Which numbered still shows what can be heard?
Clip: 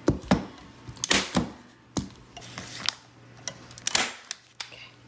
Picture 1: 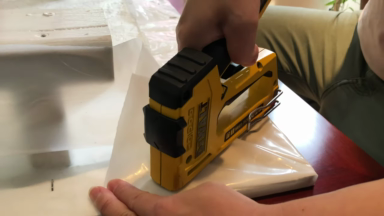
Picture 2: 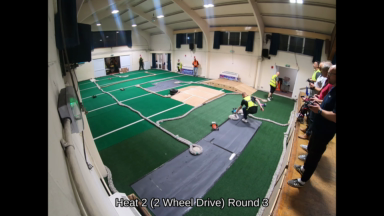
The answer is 1